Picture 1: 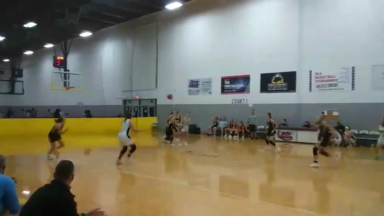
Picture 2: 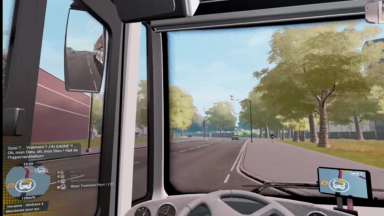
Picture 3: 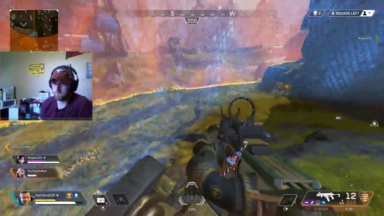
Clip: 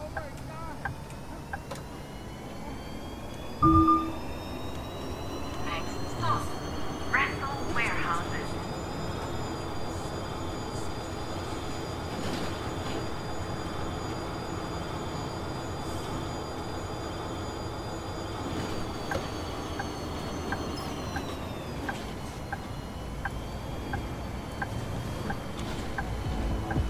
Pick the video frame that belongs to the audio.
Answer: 2